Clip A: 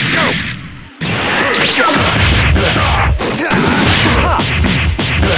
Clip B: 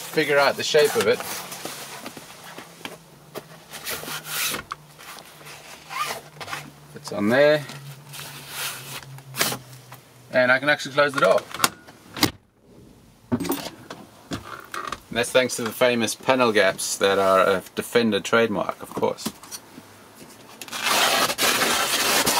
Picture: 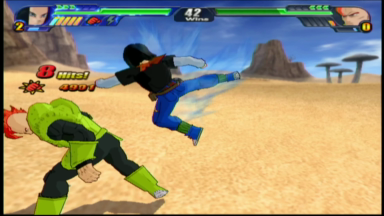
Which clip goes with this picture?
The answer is A